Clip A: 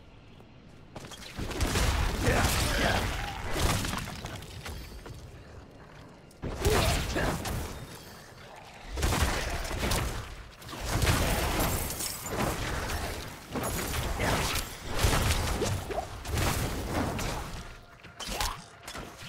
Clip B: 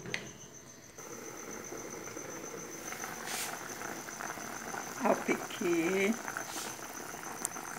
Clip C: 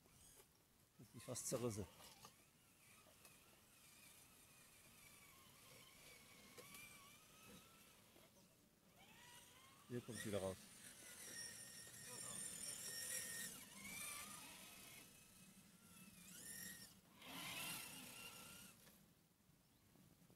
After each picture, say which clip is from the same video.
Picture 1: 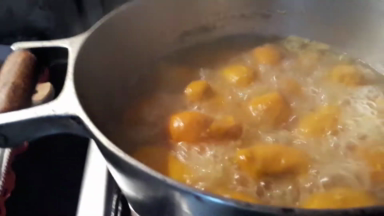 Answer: B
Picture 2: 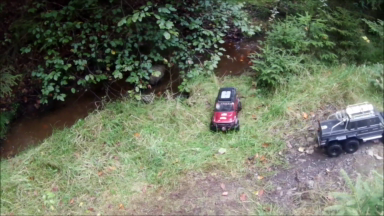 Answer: C